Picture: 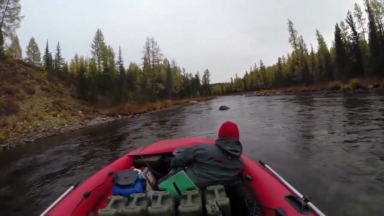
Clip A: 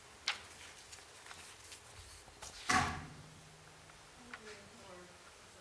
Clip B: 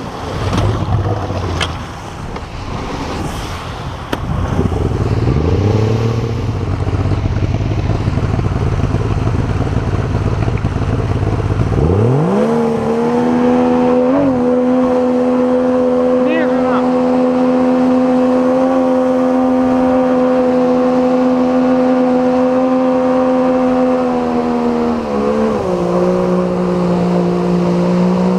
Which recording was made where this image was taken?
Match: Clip B